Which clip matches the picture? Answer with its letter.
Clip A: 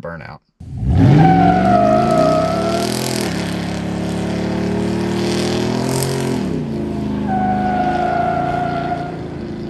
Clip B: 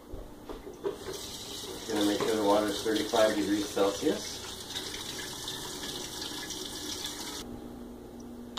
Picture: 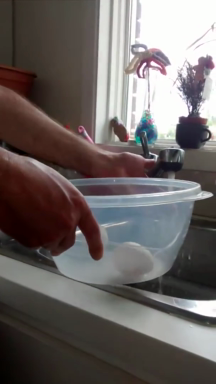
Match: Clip B